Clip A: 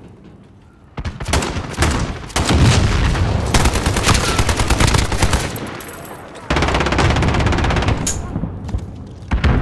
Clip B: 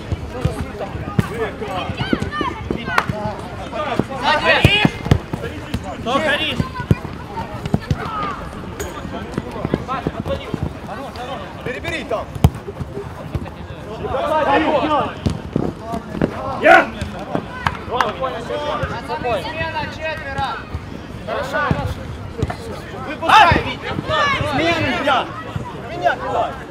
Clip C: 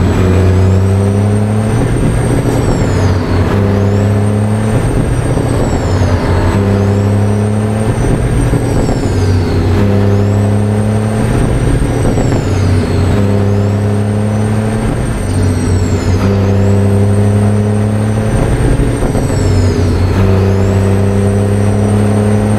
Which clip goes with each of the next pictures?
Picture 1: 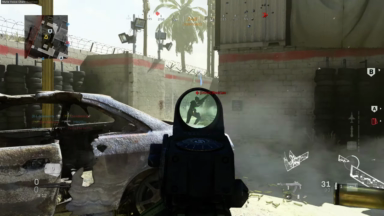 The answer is A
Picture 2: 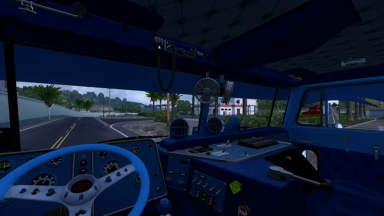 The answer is C